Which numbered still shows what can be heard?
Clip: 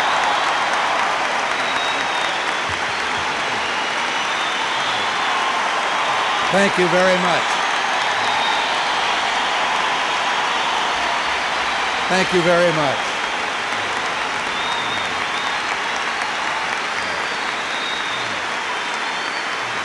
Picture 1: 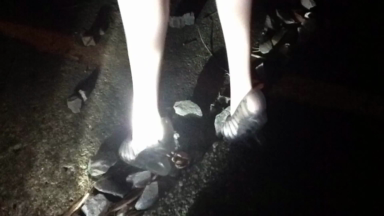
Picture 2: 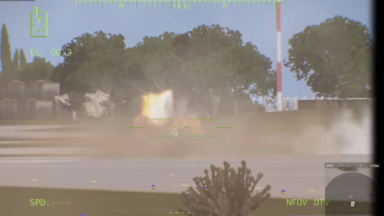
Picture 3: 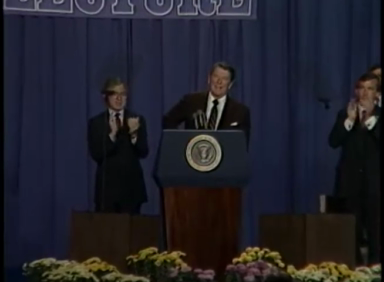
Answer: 3